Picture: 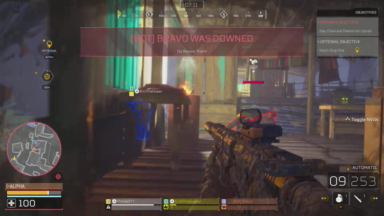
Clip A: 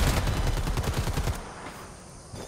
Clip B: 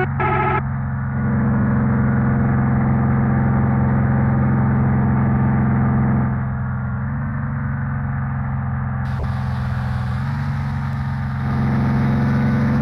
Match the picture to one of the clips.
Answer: A